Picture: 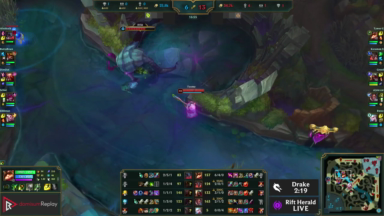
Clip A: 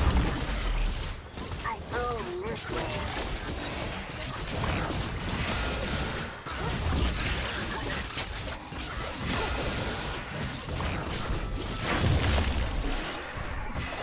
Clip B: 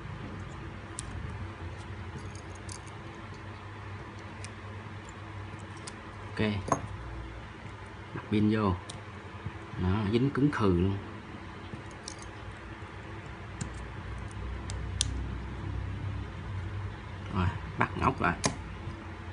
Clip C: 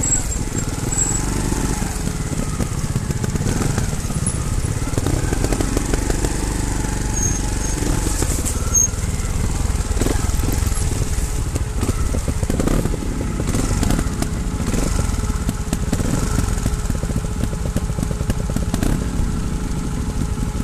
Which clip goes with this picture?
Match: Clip A